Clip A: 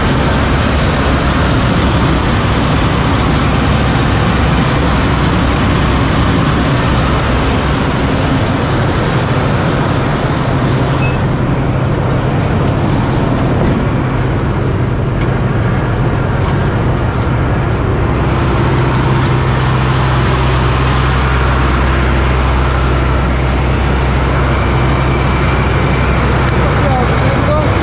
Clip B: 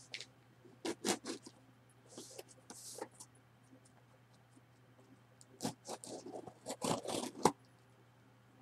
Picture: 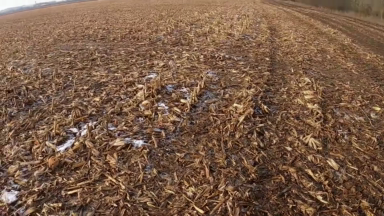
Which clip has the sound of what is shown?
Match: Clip A